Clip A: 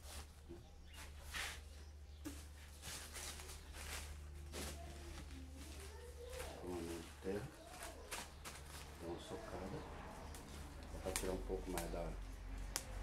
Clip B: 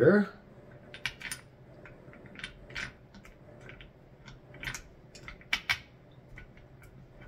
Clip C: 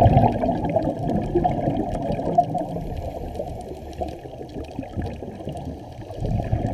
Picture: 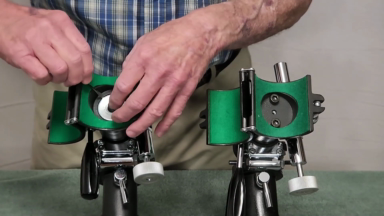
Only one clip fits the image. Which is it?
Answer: B